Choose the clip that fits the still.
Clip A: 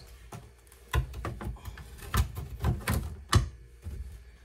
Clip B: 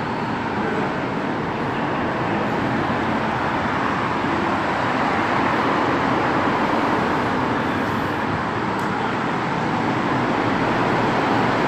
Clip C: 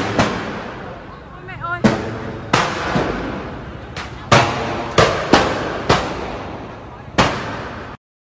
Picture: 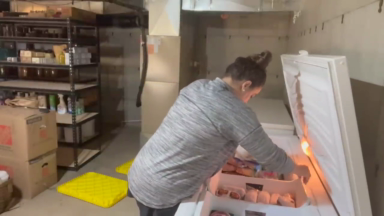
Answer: A